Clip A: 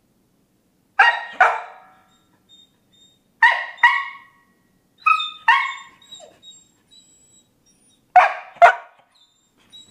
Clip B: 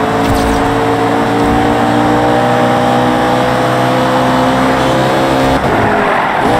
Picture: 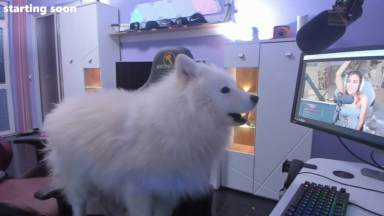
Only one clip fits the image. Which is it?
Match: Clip A